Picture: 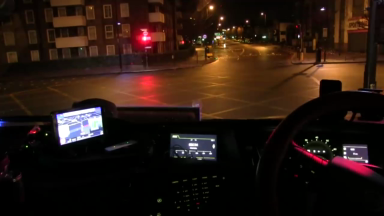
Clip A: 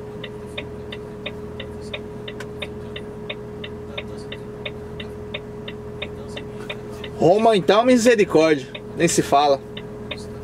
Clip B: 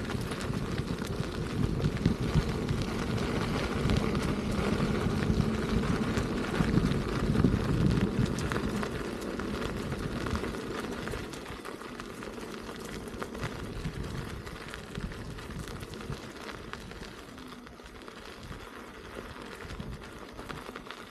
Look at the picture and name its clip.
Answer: A